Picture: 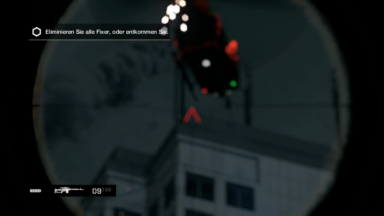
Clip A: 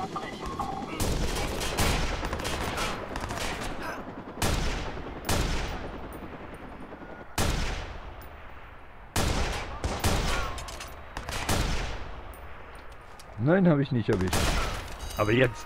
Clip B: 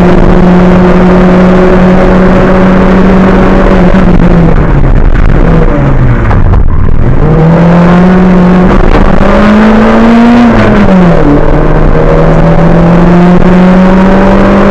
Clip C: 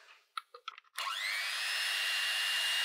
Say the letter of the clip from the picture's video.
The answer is A